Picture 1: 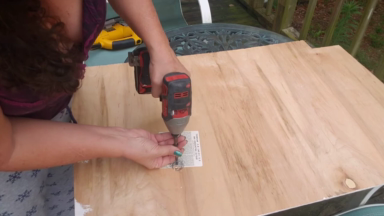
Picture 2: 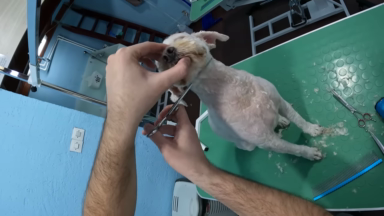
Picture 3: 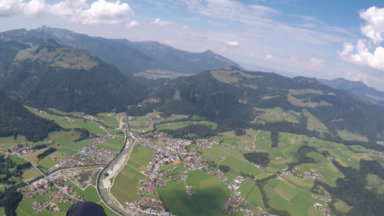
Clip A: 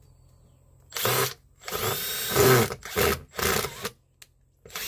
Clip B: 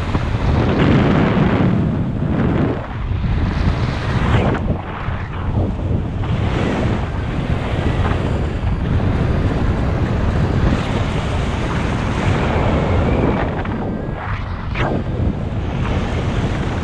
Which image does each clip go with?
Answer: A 1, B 3